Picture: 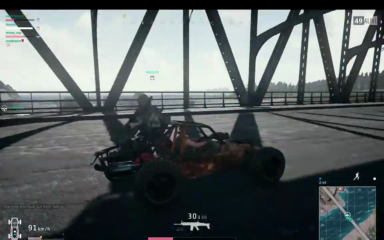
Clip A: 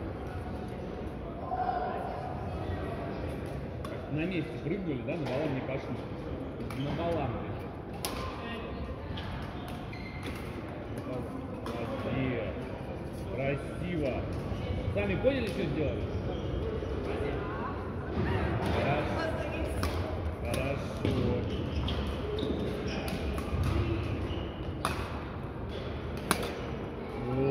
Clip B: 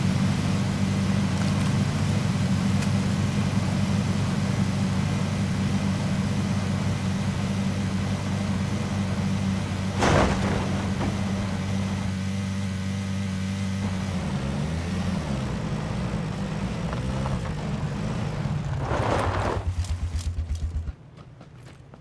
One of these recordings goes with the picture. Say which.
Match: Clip B